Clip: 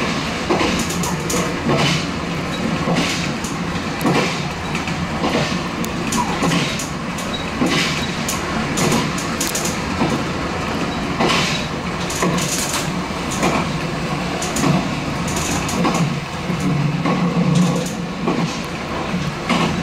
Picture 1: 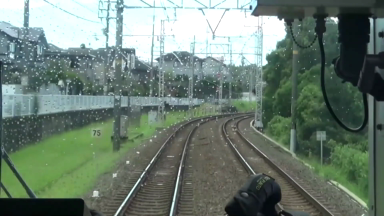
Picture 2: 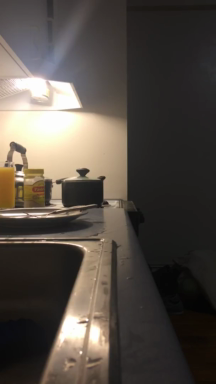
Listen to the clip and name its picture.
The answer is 1